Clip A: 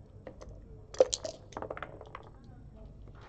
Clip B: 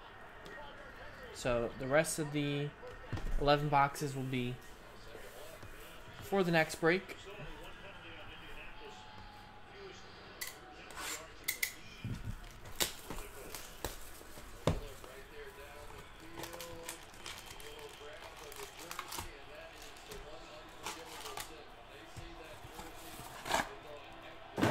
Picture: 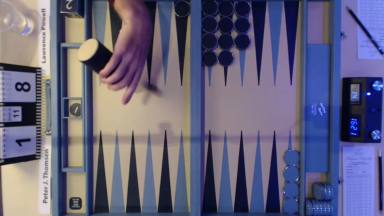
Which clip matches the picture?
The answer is A